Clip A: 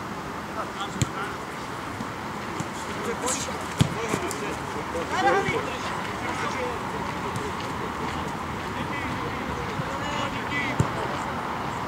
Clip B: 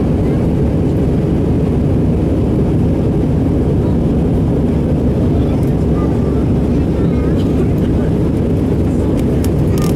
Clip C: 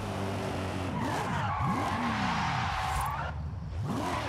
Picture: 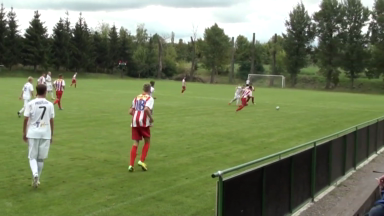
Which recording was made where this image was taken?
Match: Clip A